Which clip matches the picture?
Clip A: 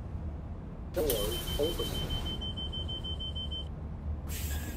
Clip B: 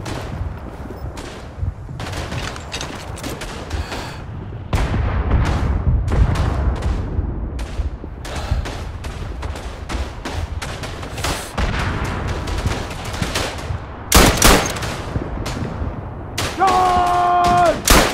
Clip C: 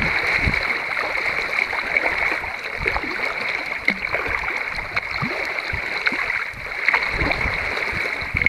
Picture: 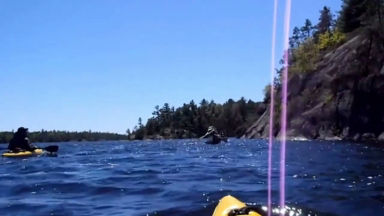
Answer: C